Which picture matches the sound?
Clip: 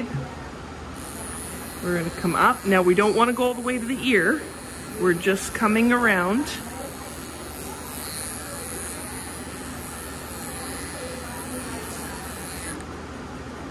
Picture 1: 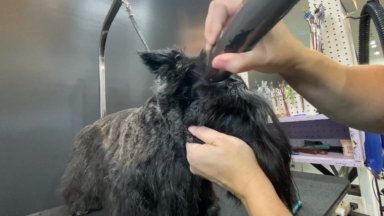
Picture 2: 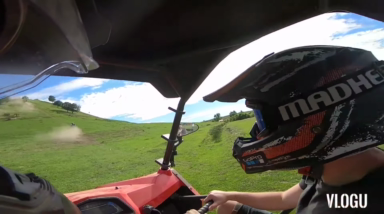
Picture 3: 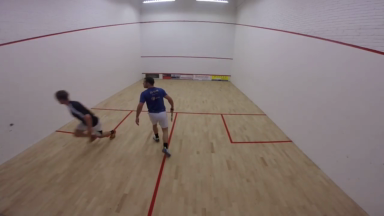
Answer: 1